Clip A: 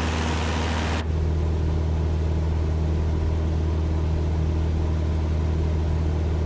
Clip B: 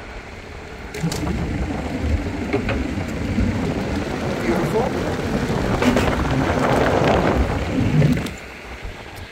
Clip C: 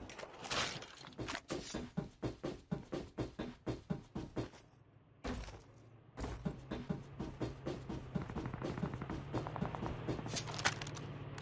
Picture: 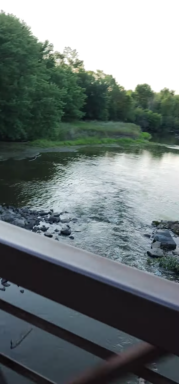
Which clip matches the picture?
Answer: B